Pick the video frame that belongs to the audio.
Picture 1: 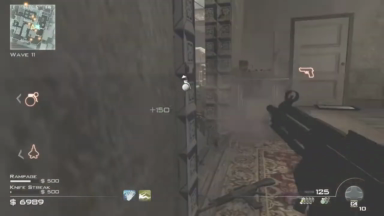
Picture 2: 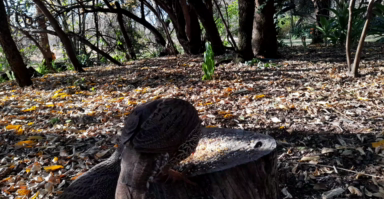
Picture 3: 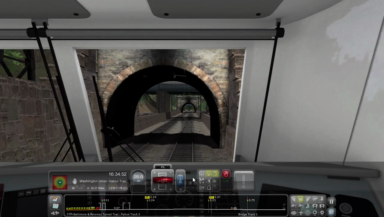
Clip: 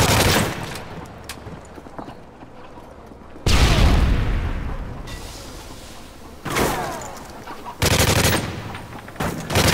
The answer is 1